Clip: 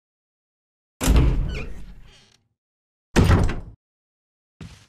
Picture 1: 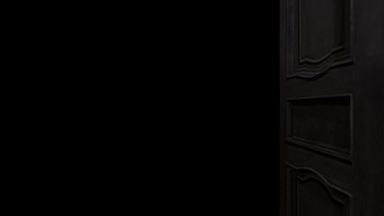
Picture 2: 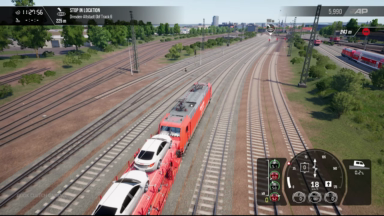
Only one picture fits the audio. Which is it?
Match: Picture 1